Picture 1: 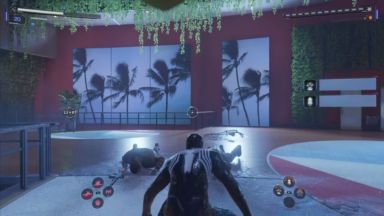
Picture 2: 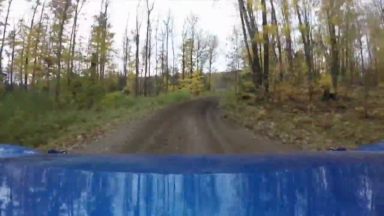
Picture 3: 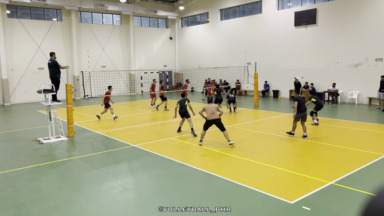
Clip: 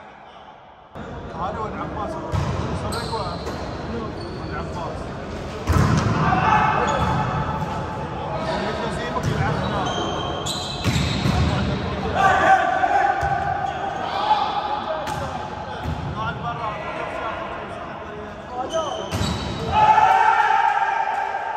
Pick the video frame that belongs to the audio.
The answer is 3